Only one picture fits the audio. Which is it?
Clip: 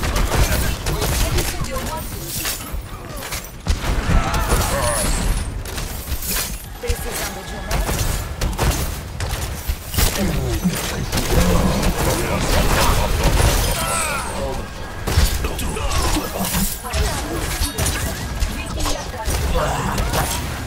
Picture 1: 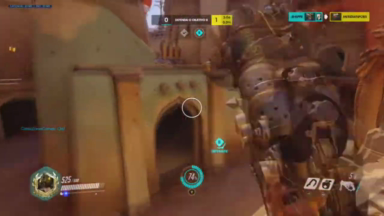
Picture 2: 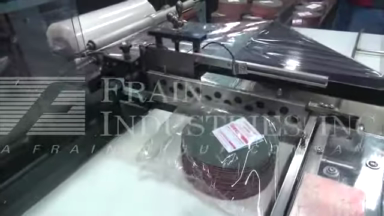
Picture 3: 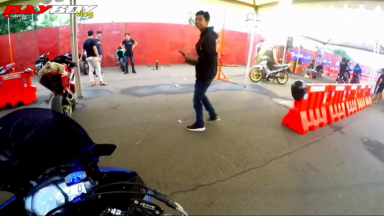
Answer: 1